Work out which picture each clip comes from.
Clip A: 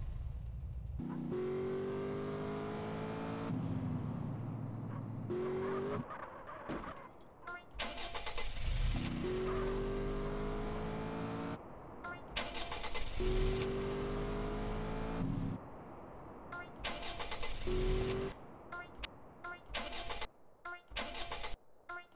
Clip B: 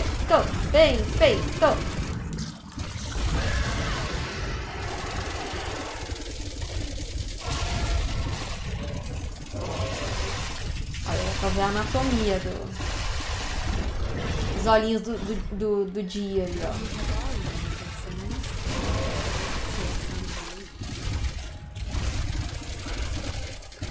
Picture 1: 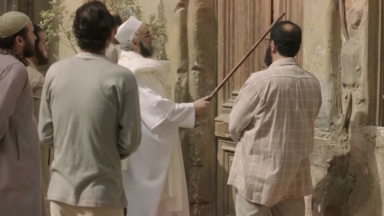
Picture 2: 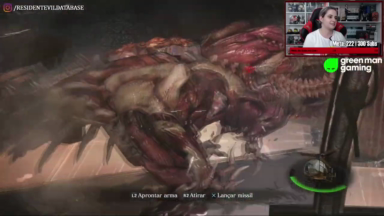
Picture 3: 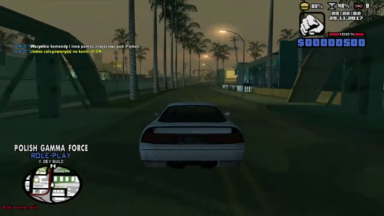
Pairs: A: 3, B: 2